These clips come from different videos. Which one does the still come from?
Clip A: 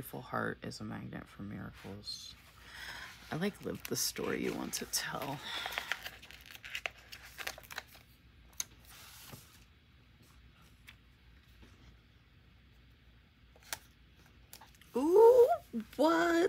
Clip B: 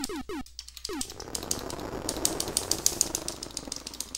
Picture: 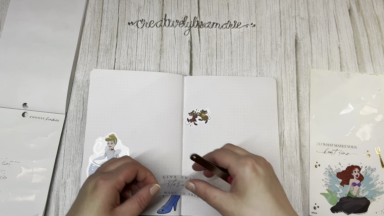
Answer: A